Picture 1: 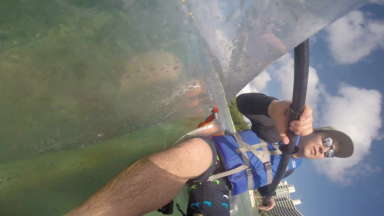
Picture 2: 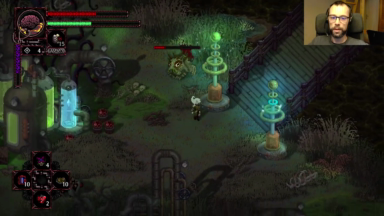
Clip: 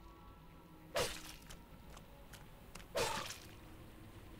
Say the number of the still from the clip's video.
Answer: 2